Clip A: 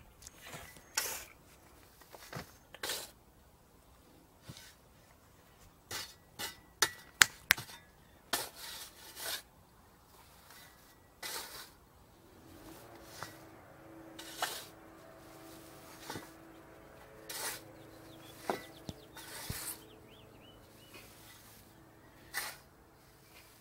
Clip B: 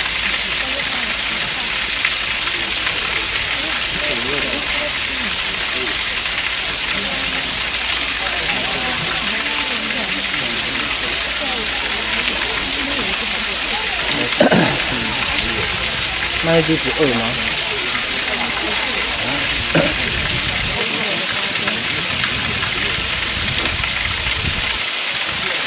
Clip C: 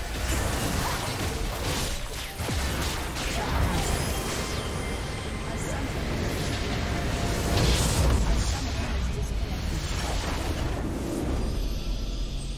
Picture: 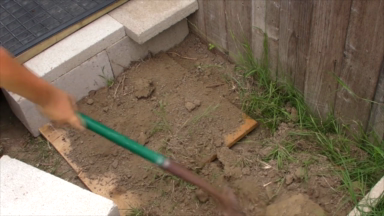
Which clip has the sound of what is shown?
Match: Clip A